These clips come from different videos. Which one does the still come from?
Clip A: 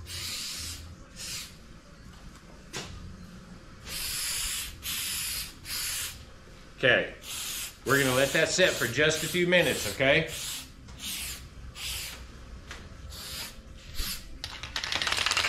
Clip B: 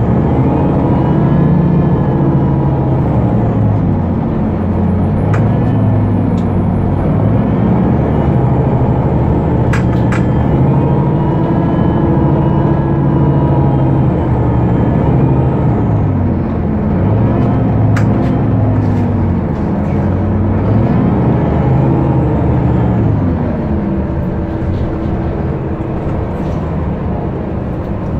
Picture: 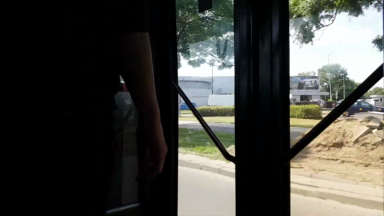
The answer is B